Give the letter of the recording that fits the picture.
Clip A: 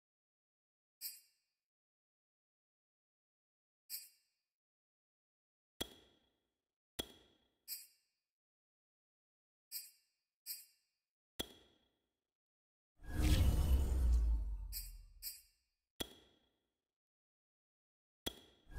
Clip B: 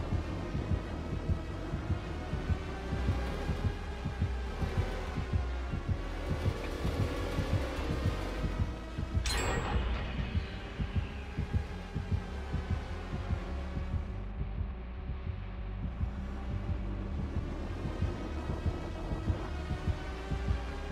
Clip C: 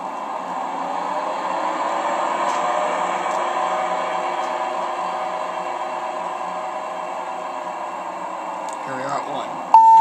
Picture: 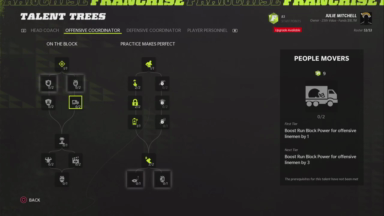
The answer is A